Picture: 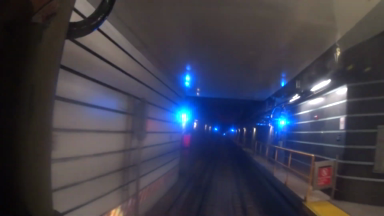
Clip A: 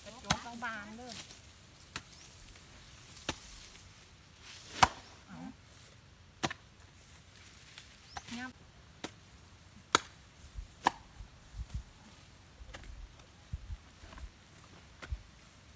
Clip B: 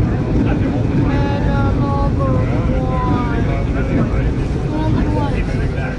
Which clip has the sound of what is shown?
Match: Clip B